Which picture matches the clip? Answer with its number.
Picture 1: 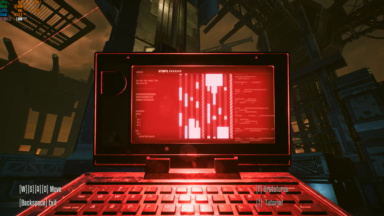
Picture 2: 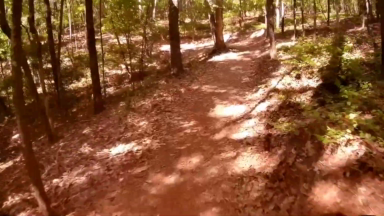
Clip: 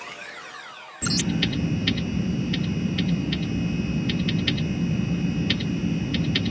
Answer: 1